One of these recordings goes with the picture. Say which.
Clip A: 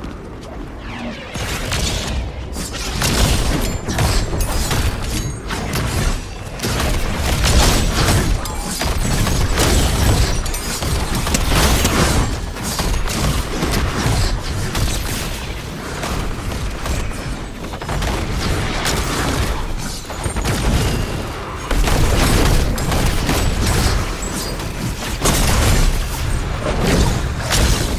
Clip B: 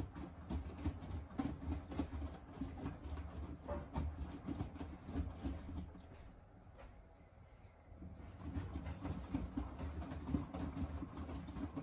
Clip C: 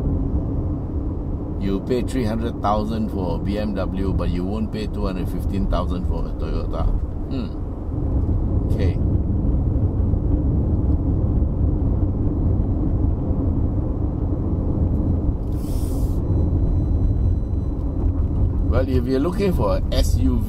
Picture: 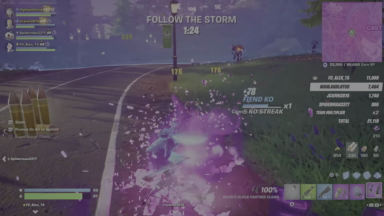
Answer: A